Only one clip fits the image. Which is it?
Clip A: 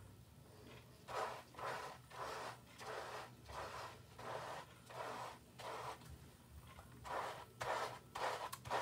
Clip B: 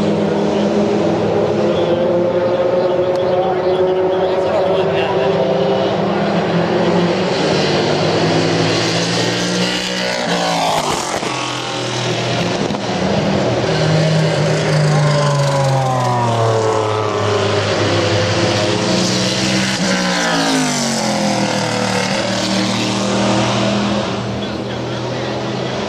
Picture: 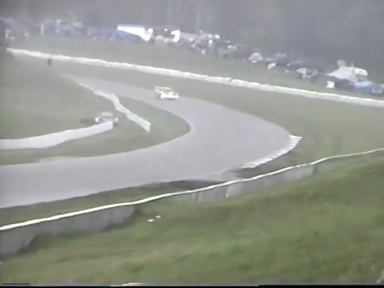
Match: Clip B